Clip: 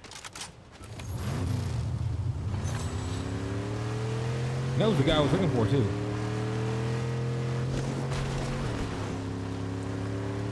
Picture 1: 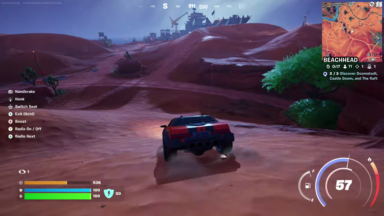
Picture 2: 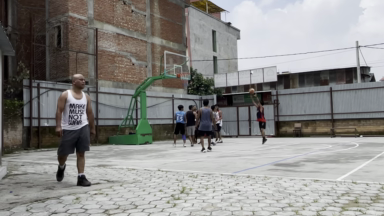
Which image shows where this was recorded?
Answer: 1